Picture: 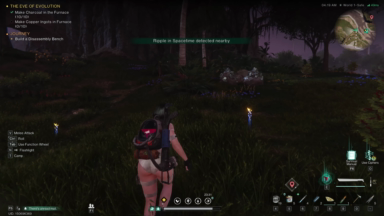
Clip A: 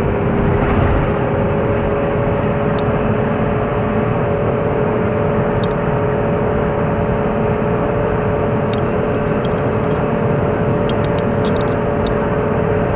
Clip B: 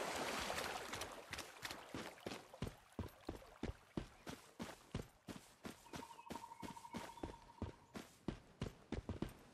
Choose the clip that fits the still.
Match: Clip B